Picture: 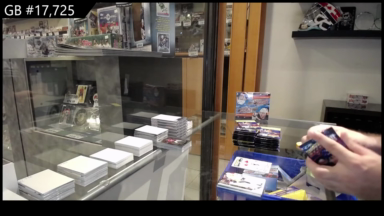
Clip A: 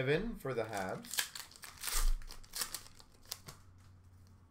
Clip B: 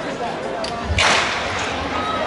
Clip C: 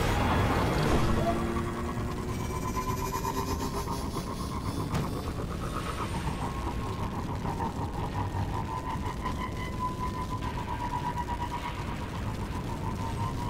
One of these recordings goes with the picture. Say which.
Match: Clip A